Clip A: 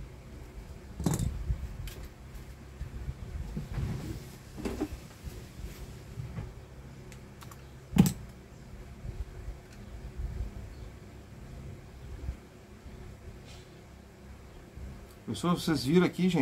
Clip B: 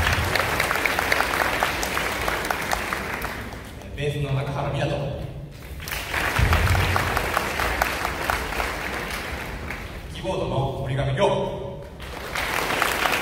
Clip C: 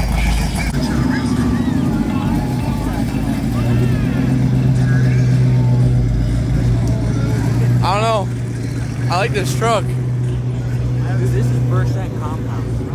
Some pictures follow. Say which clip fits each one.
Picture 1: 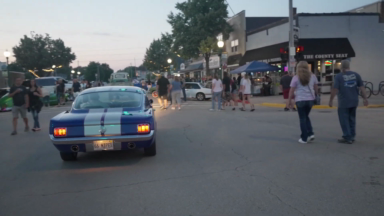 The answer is C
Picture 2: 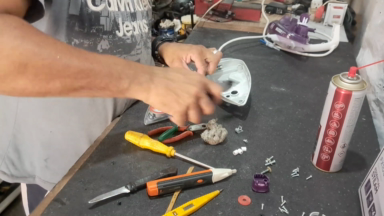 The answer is A